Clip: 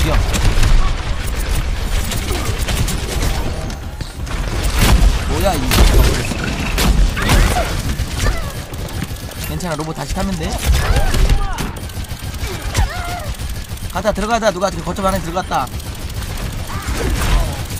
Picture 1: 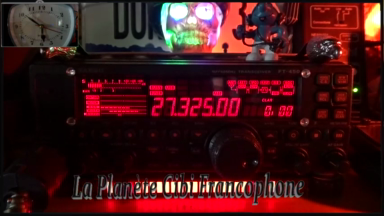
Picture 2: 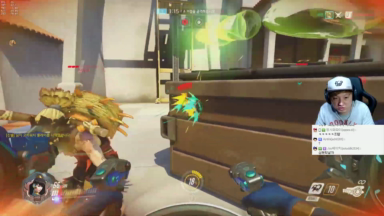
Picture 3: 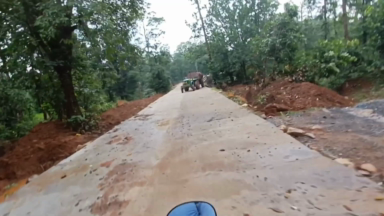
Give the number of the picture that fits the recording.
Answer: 2